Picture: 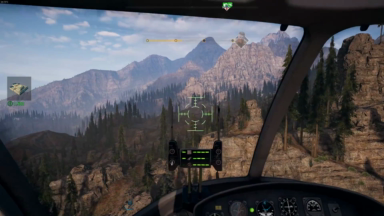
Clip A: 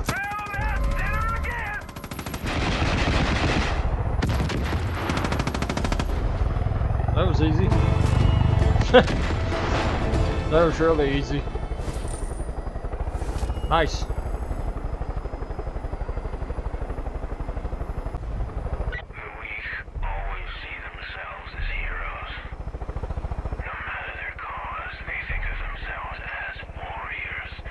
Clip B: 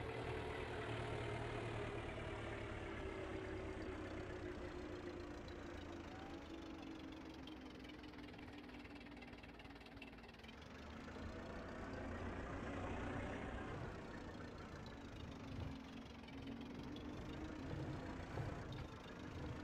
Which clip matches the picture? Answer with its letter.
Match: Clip A